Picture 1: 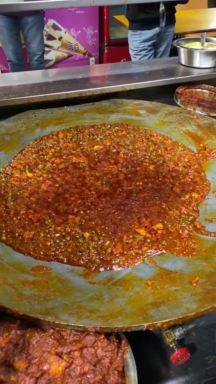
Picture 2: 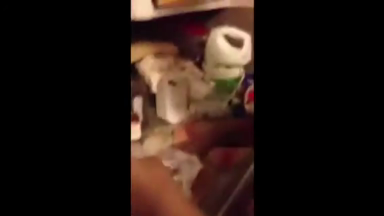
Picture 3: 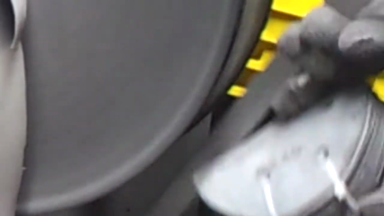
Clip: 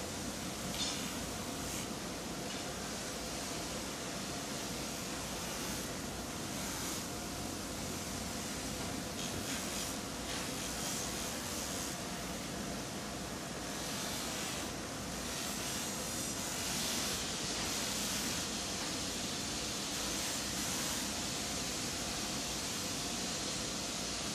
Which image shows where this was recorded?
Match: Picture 3